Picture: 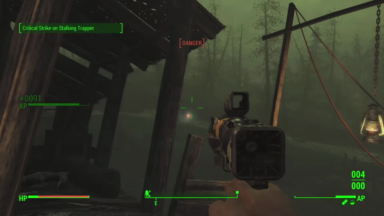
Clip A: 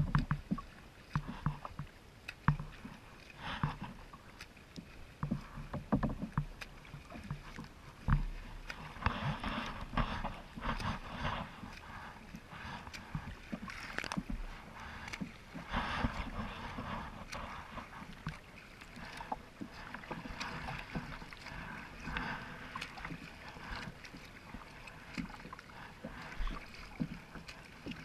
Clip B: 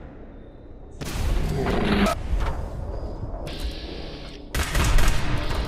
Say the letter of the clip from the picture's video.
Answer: B